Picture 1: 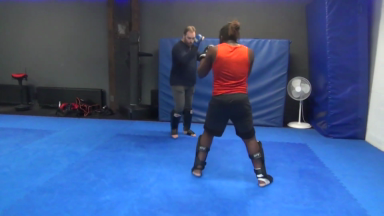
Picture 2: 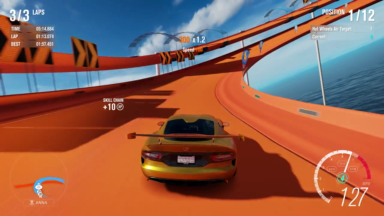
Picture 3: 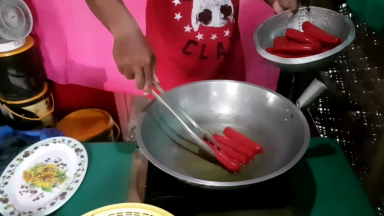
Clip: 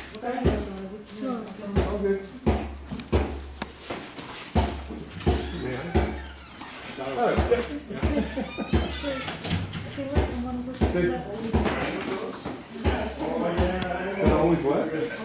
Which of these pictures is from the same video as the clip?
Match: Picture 1